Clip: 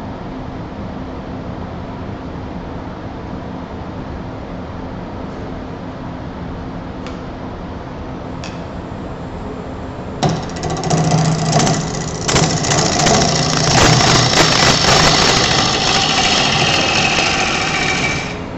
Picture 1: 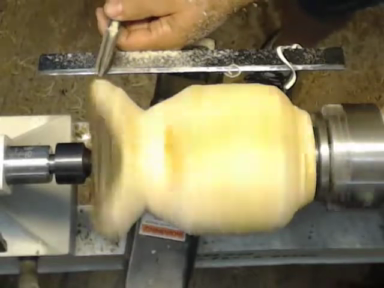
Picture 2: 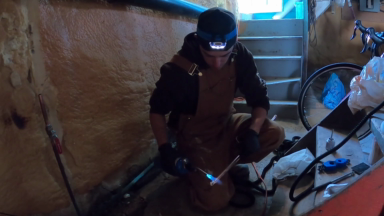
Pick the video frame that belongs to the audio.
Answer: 1